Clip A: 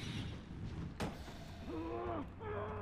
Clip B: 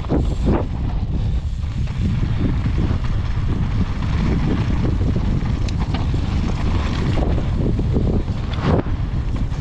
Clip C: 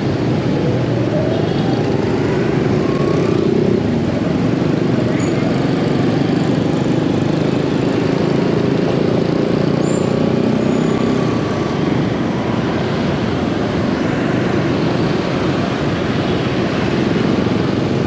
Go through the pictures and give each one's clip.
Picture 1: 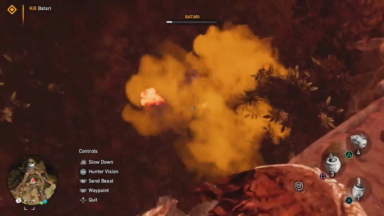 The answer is A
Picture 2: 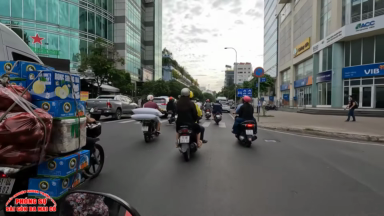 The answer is C